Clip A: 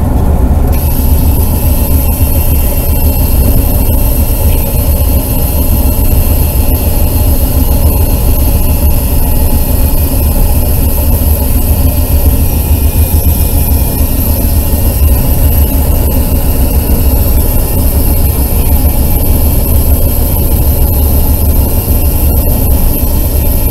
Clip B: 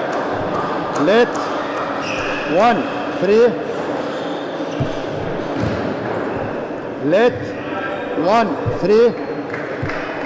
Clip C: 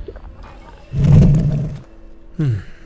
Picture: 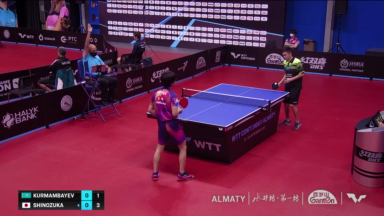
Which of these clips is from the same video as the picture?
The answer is B